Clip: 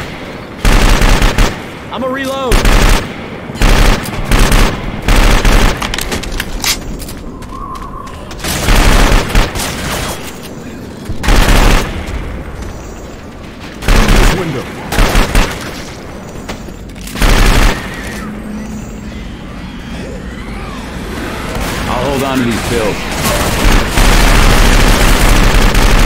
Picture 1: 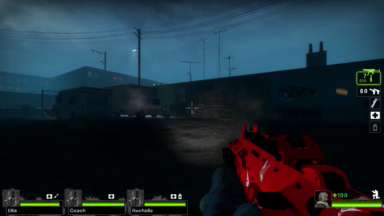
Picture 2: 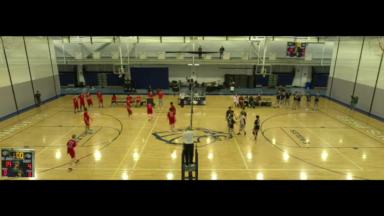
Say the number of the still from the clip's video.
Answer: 1